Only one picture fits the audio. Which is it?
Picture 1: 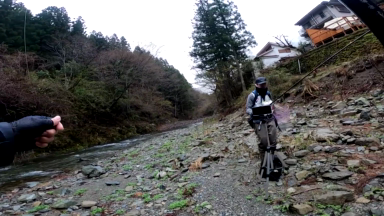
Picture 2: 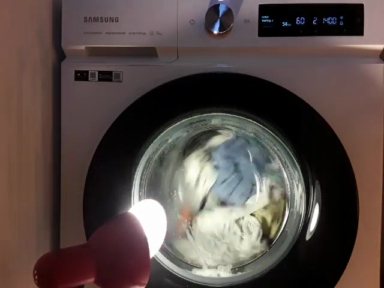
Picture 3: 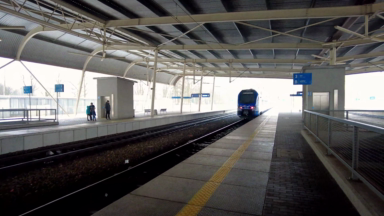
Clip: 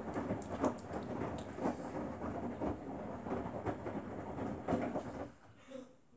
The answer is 2